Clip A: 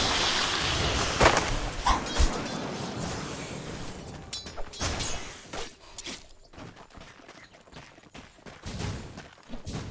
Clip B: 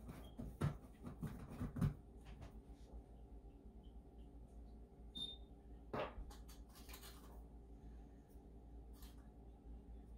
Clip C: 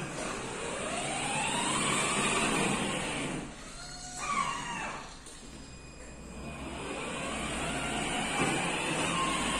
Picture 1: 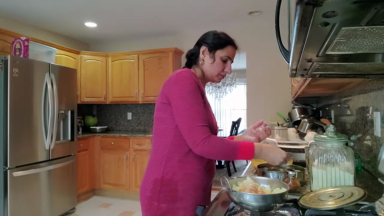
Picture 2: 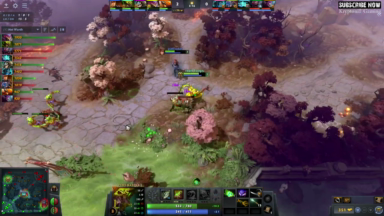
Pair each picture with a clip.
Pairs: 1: B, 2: A